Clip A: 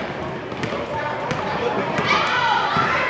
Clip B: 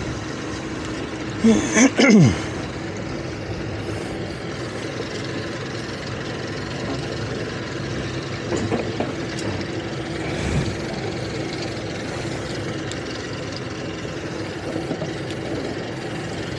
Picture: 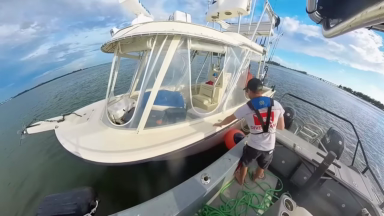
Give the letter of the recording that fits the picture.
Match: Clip B